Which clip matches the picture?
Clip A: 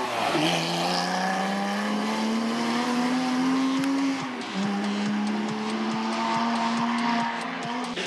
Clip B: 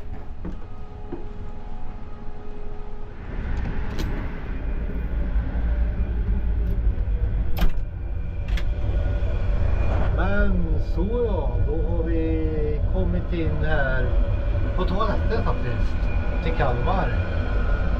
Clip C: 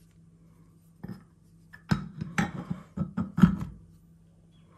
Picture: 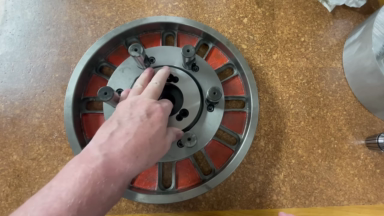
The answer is C